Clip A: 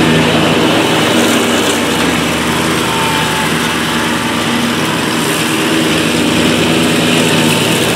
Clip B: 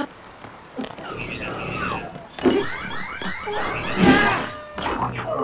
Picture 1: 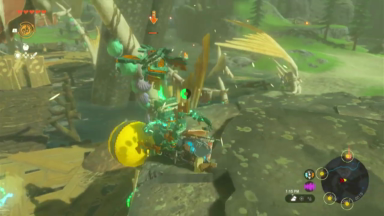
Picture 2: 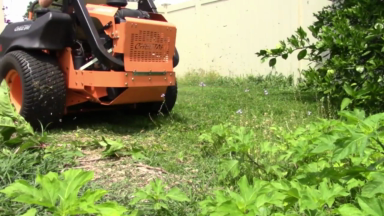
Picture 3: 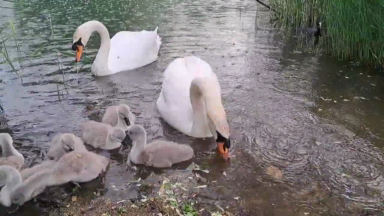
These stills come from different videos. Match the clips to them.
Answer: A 2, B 1